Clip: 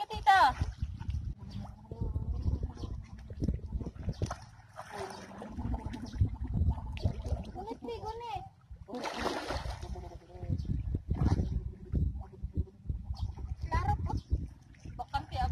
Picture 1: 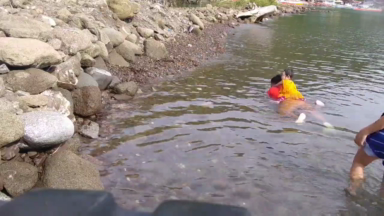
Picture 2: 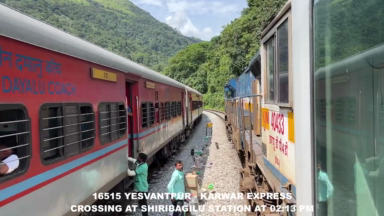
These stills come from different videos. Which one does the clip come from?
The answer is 1